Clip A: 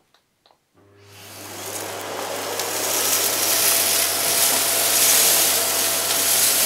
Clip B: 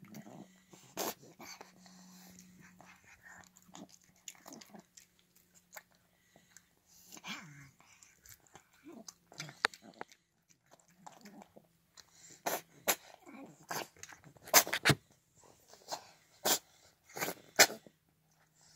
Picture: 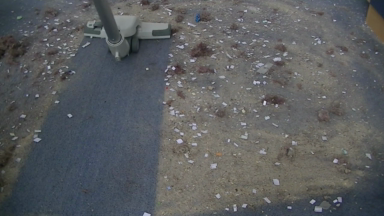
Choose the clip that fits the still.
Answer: A